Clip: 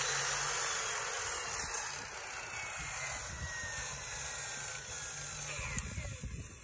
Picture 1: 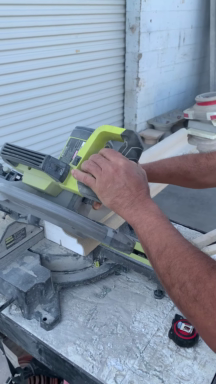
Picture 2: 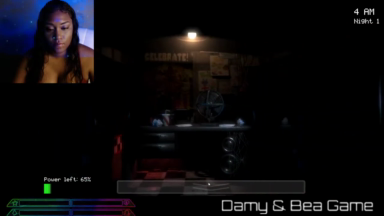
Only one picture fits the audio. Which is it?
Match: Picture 1